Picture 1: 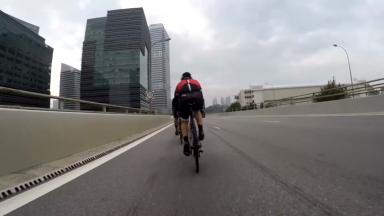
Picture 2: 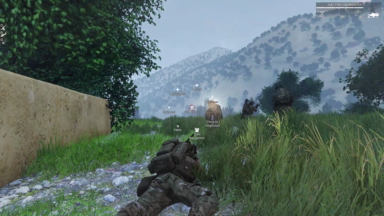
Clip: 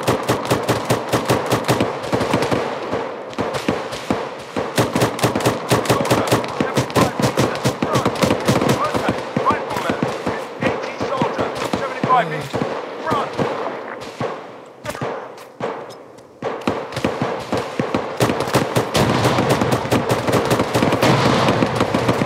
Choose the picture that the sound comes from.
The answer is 2